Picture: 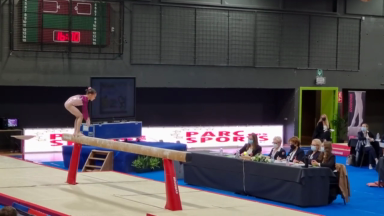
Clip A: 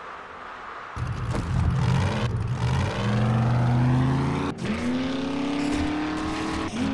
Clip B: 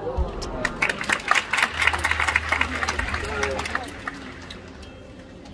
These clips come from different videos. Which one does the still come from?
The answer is B